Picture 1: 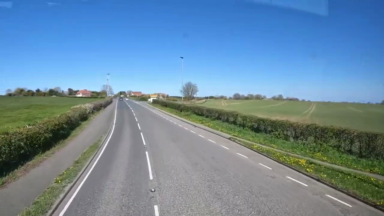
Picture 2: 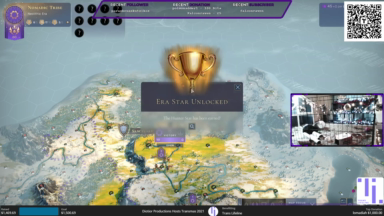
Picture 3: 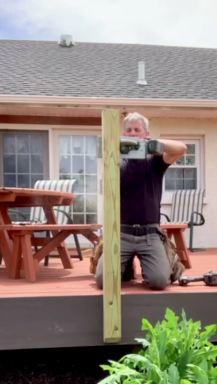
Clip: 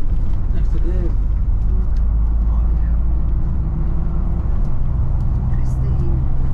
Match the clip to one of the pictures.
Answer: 1